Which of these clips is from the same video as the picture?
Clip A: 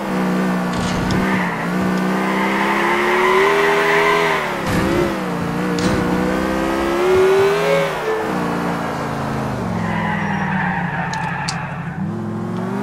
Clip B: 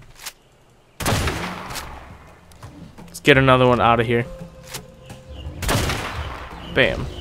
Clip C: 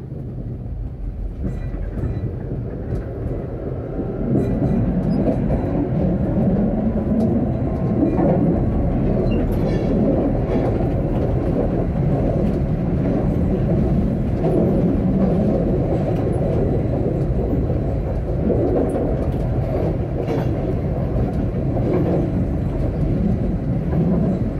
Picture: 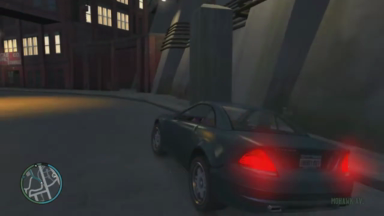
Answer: A